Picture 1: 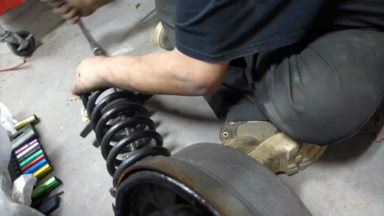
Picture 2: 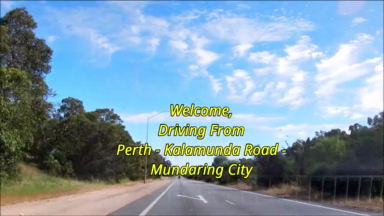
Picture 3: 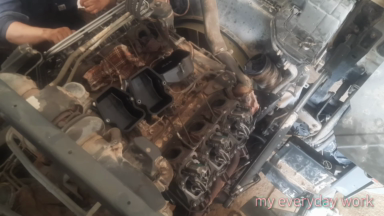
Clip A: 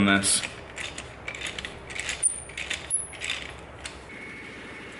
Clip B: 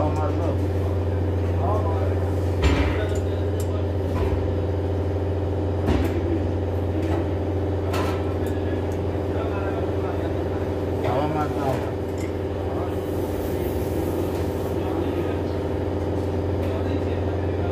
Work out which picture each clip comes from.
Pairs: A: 1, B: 3